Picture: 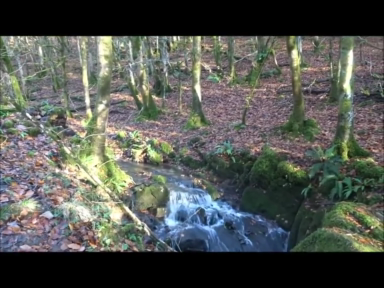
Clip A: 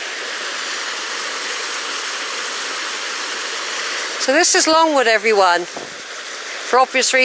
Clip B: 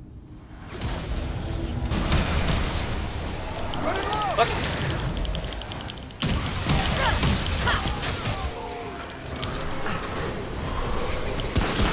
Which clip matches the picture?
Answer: A